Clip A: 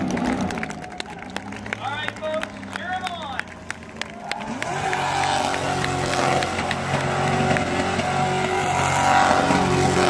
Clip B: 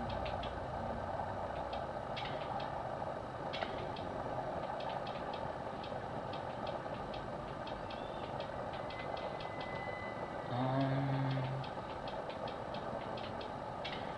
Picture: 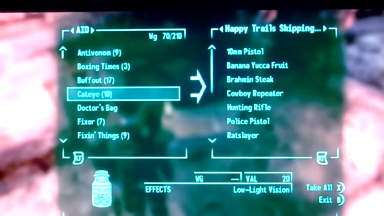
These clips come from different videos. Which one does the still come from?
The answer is B